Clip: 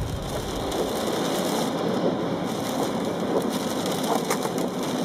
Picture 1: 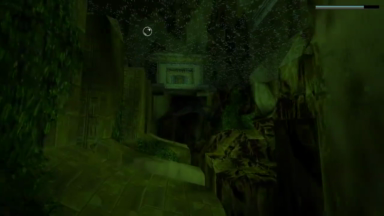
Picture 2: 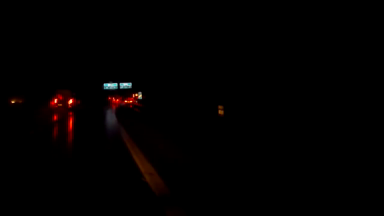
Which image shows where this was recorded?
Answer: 2